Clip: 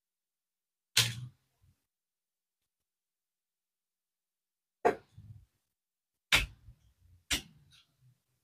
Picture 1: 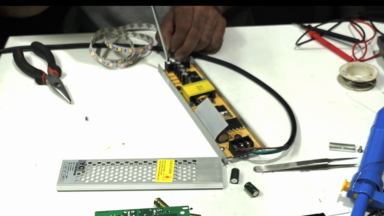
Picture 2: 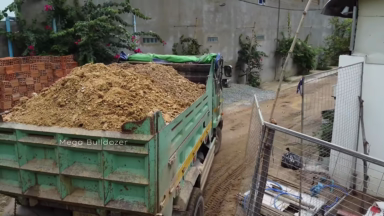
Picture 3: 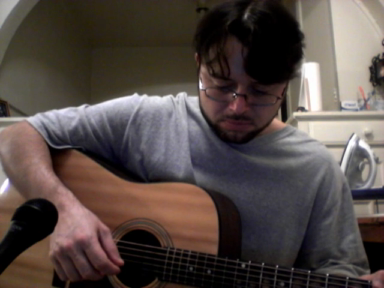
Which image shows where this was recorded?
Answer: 1